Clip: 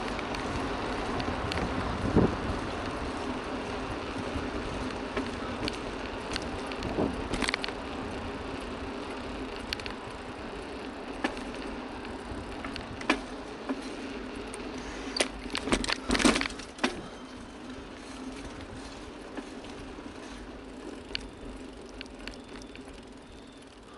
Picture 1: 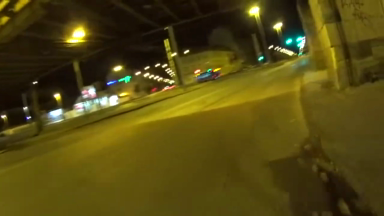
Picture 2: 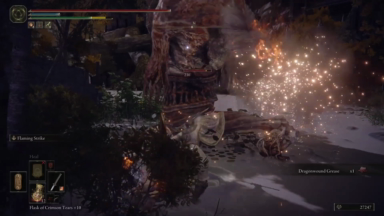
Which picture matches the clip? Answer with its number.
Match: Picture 1